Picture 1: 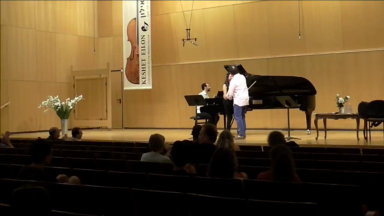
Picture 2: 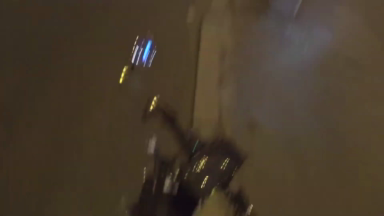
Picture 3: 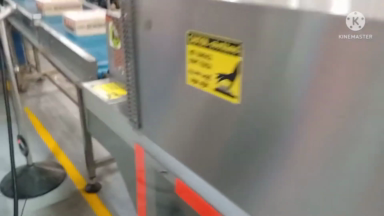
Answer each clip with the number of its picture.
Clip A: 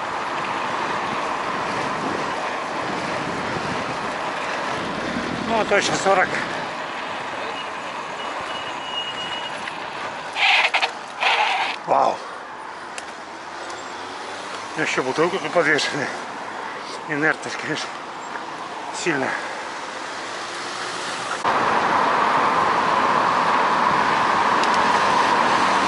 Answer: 2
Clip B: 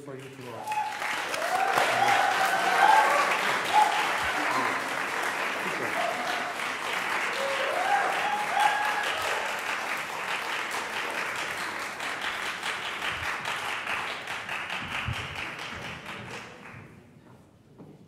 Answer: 1